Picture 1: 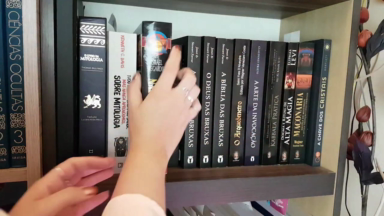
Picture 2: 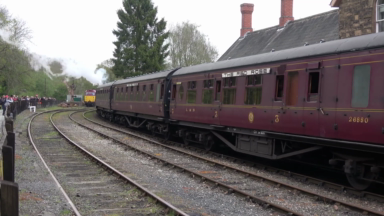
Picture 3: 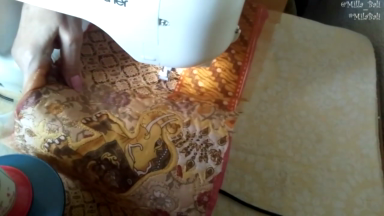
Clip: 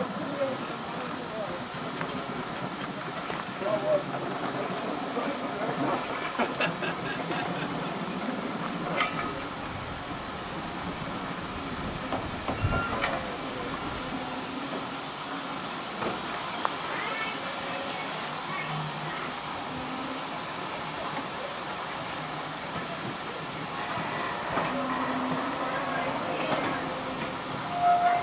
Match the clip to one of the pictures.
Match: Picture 2